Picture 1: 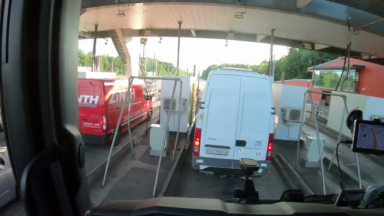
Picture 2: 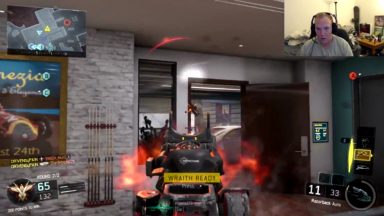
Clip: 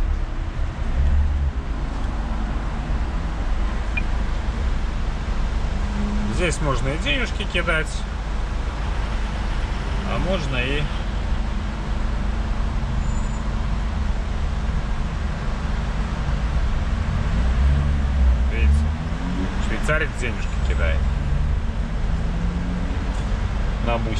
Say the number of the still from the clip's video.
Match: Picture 1